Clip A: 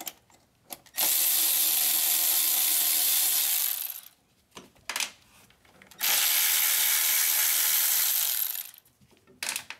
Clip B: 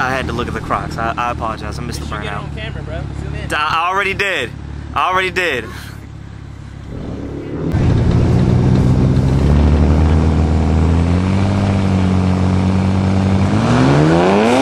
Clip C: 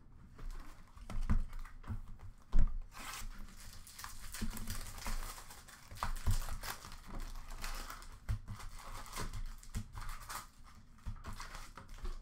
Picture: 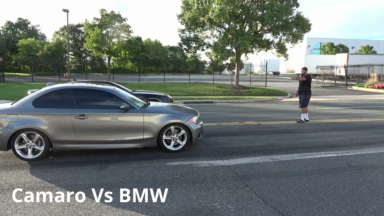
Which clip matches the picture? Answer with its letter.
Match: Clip B